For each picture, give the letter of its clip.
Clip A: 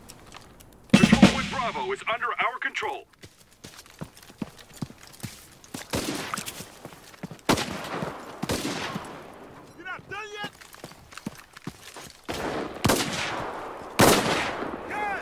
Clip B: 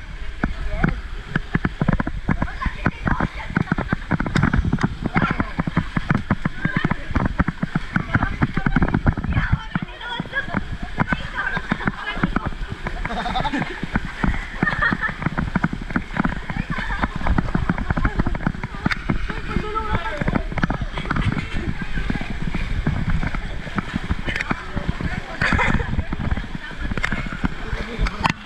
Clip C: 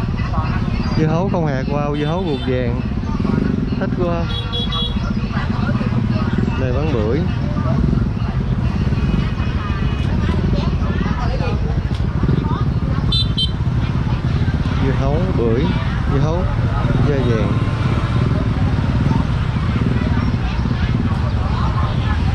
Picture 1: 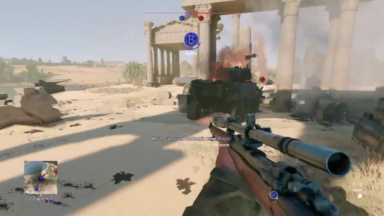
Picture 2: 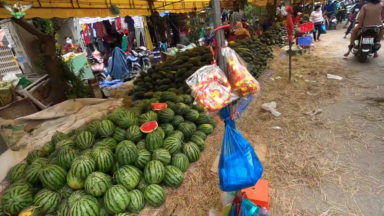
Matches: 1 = A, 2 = C